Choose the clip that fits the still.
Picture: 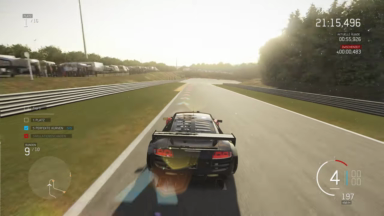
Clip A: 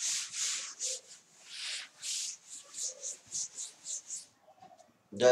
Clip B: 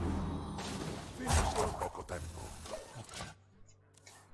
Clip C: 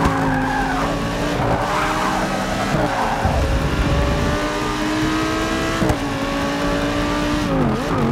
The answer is C